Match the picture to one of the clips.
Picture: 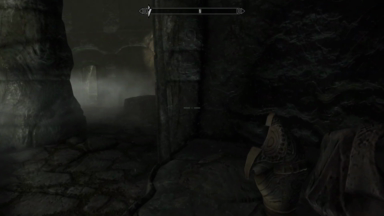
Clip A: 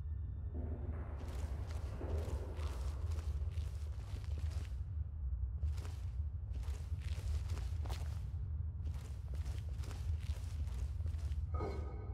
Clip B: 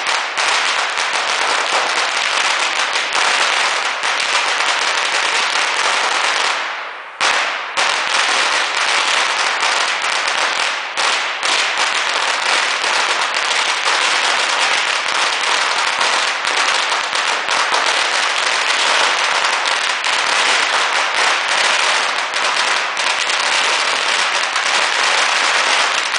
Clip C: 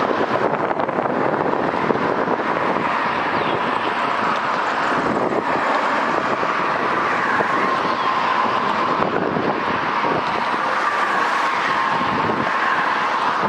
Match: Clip A